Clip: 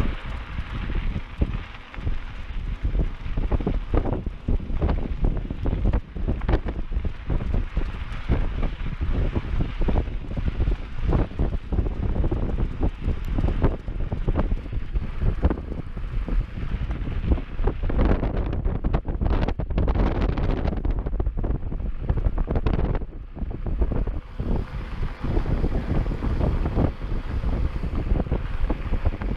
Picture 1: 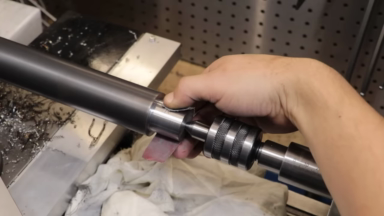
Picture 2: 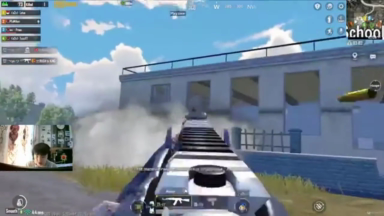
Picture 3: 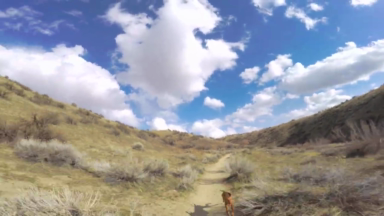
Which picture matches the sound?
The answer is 3